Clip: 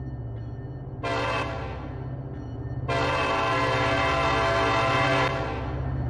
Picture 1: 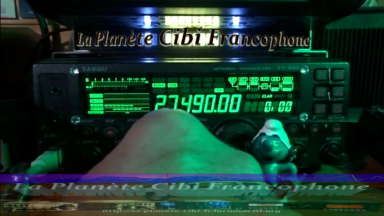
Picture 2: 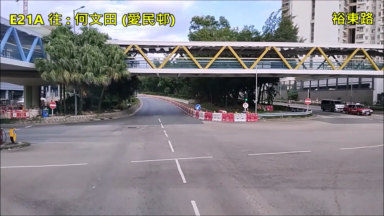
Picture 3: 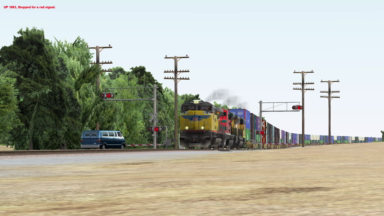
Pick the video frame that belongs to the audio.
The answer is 3